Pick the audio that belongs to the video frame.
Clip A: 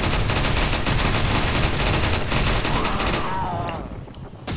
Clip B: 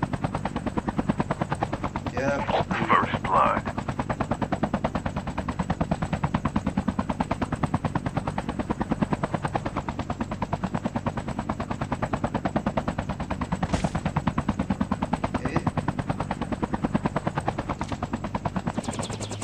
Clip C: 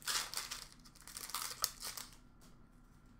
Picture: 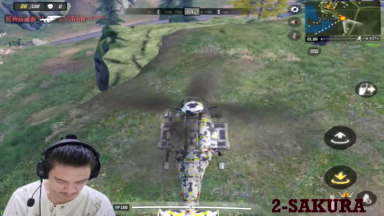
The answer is B